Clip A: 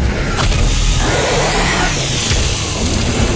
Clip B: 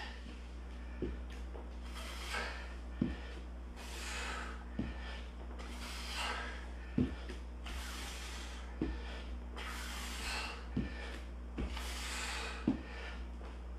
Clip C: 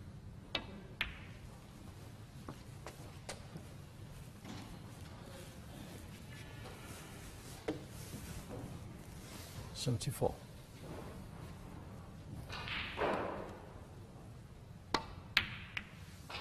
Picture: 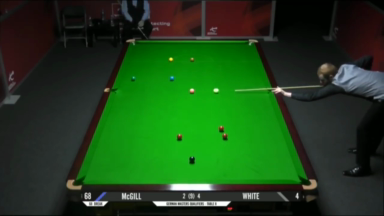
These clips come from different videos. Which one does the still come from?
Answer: C